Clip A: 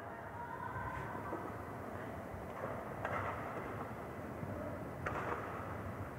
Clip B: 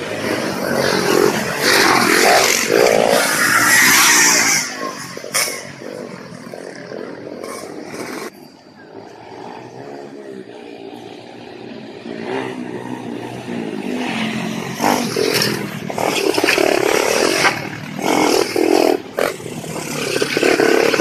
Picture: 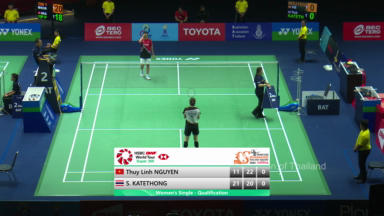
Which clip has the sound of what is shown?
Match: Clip A